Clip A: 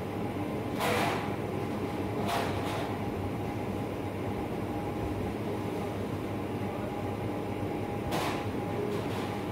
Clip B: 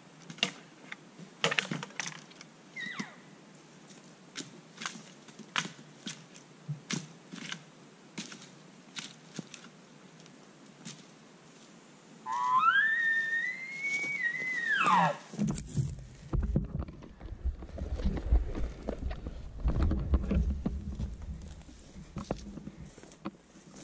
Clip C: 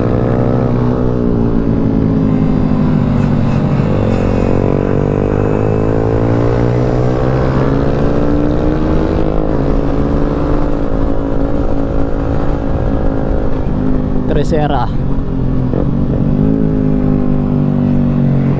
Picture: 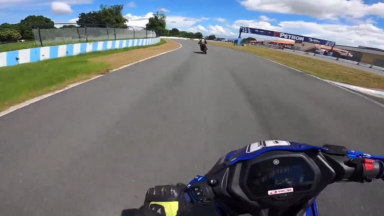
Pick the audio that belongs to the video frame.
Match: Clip C